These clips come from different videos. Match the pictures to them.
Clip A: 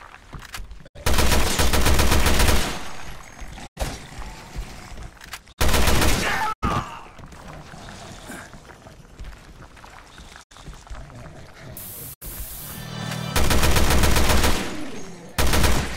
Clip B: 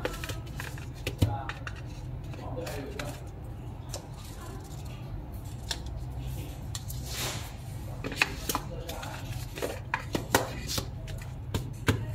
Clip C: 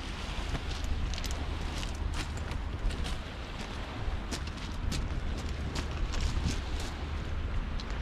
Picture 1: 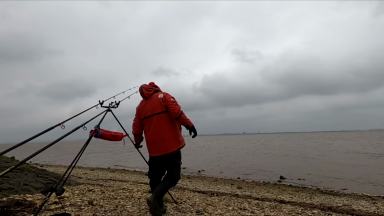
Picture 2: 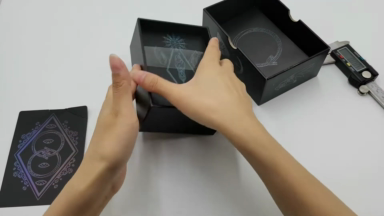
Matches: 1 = C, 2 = B